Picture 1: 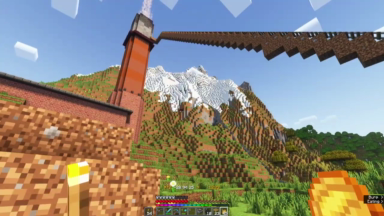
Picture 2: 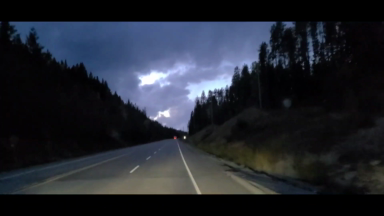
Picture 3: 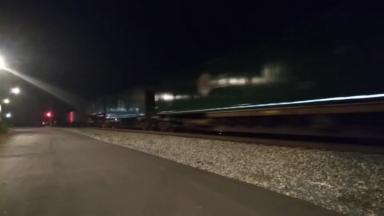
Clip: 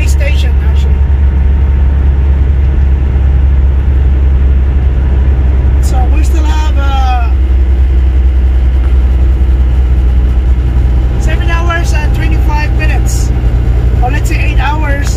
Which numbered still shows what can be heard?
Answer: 2